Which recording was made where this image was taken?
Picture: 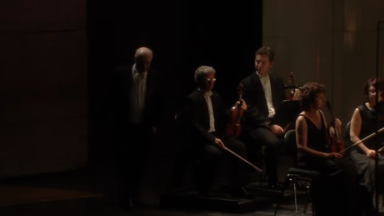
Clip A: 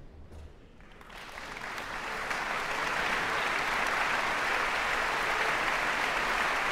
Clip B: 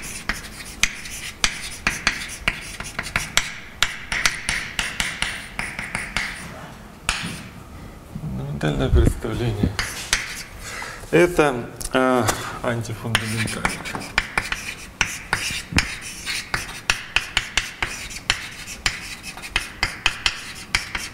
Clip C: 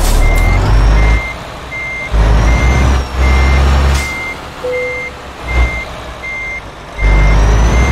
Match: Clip A